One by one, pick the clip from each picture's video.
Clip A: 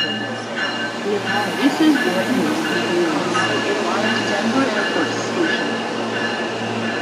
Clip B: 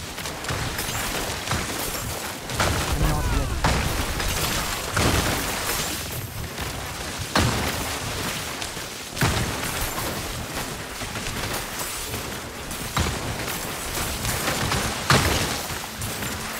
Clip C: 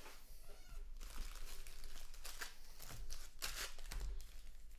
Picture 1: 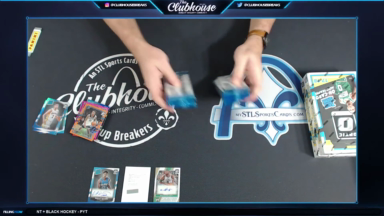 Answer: C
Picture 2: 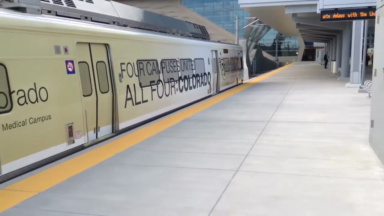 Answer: A